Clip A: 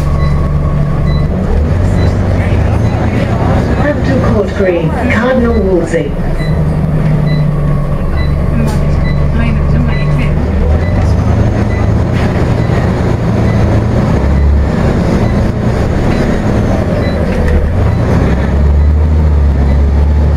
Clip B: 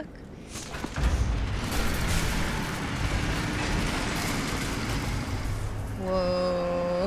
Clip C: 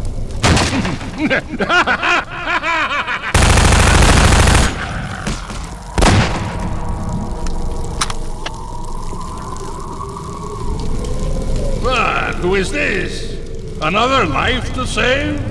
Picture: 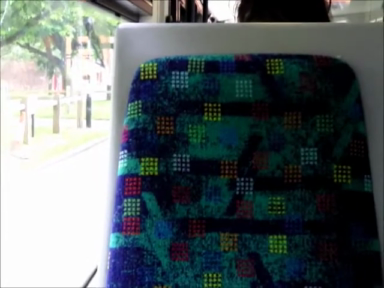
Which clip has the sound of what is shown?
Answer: A